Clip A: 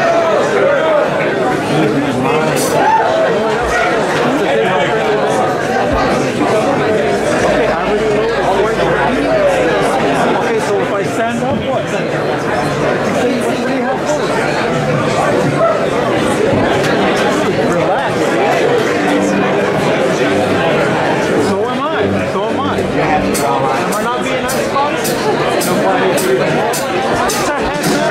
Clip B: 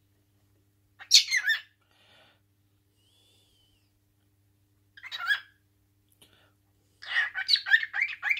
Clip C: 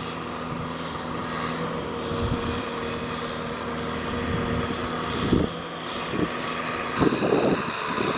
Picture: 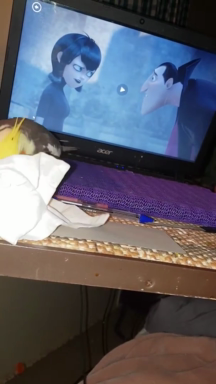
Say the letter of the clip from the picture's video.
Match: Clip B